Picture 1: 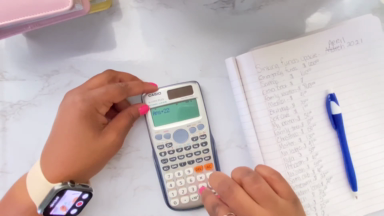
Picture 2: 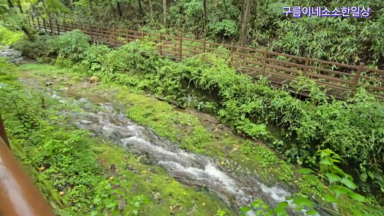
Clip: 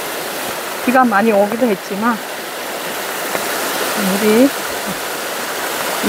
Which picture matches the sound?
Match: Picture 2